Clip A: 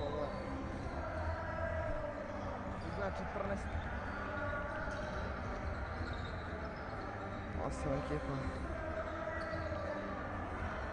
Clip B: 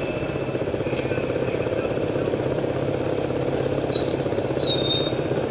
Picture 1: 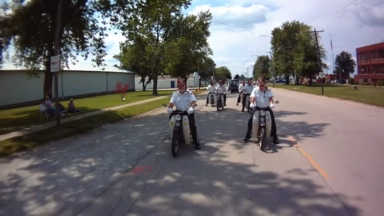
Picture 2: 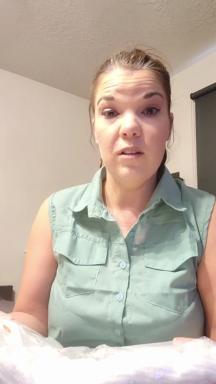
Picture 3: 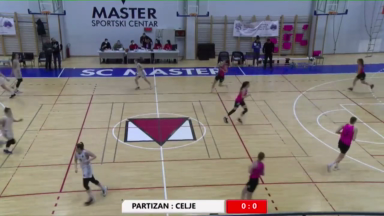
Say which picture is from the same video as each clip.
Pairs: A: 3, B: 1